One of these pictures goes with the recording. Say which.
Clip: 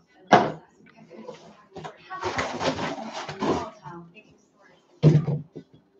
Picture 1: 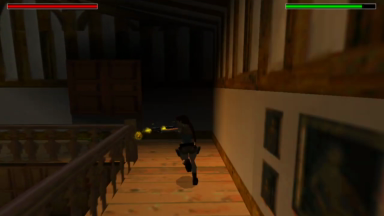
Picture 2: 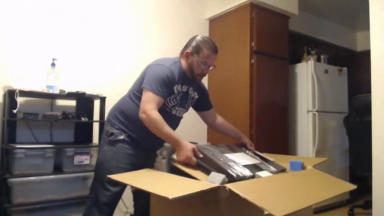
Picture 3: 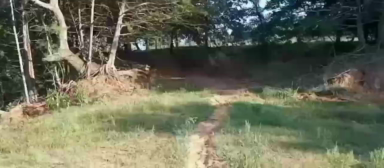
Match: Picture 2